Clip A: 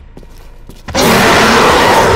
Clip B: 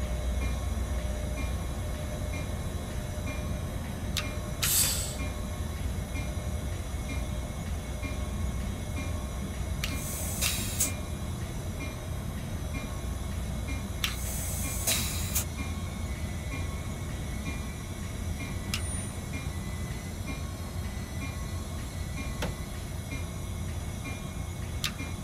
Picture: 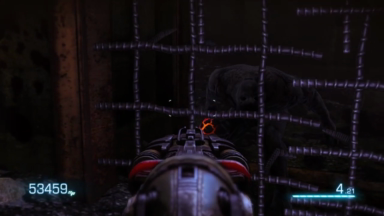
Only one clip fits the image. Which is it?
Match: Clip A